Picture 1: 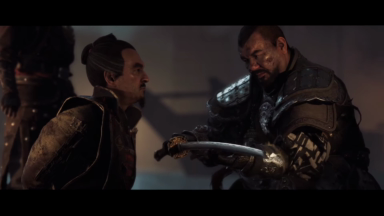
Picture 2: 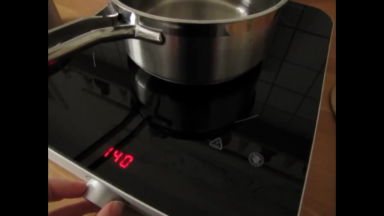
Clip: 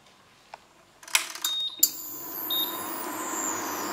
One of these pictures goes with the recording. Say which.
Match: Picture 2